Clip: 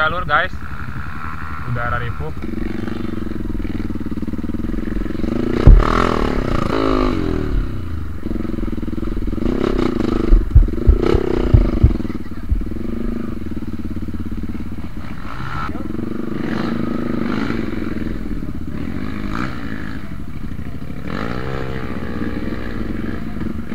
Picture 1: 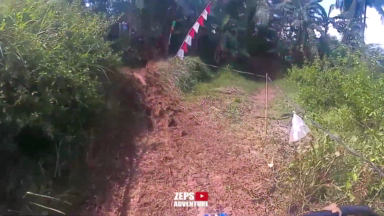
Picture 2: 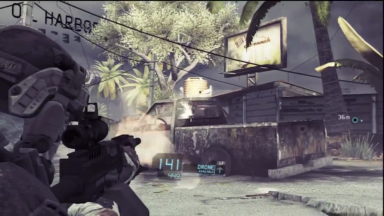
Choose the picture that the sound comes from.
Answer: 1